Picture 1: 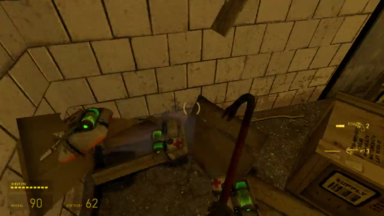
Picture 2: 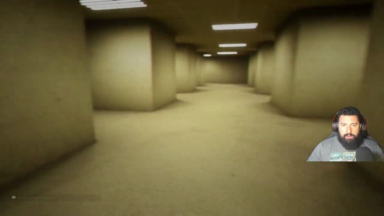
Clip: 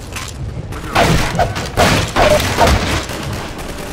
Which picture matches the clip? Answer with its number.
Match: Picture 1